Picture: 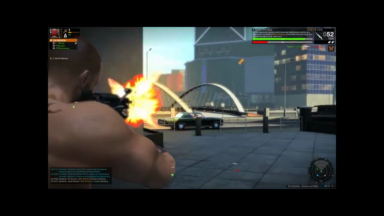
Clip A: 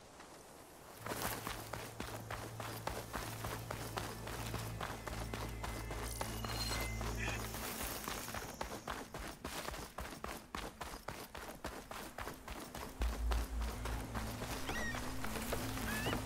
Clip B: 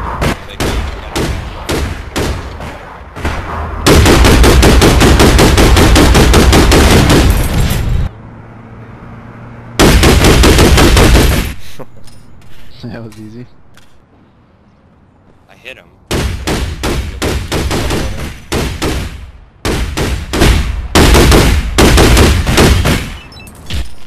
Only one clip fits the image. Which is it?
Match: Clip B